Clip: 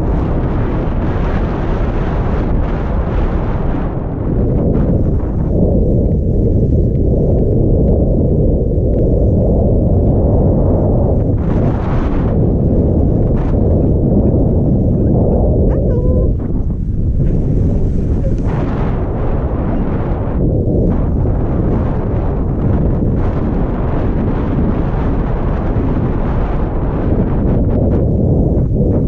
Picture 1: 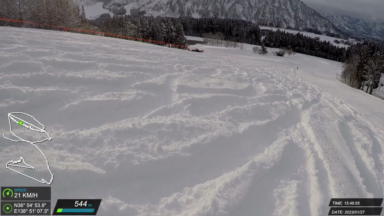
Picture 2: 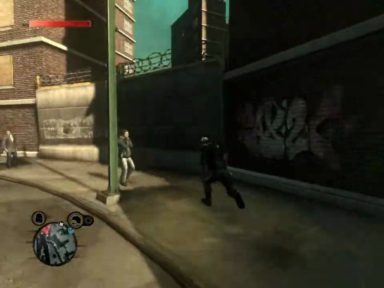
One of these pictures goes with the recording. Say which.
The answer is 1